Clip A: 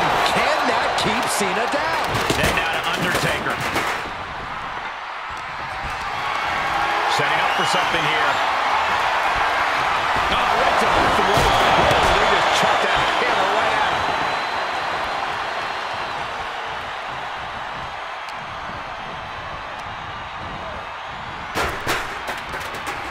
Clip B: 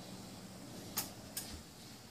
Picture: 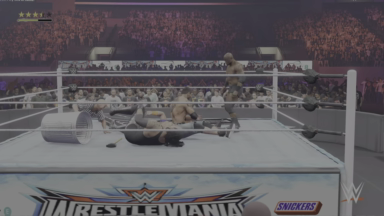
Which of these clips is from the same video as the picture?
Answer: A